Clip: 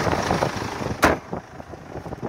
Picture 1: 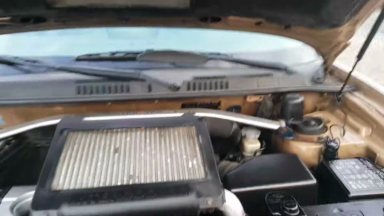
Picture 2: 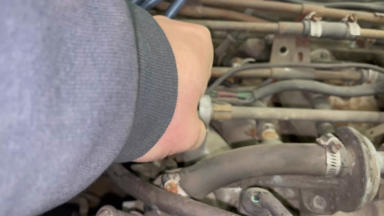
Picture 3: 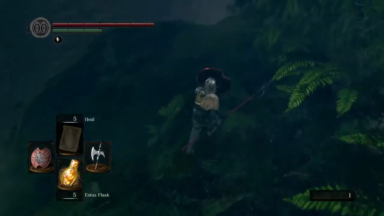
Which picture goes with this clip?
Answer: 1